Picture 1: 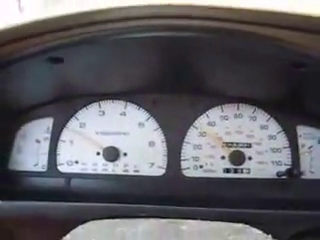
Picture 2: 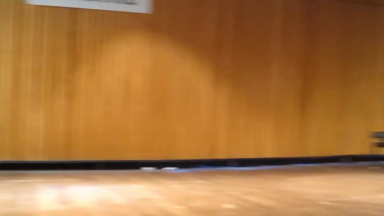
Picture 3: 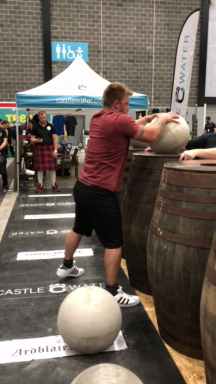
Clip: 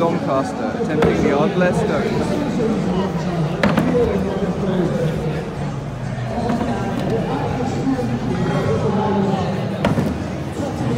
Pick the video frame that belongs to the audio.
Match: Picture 3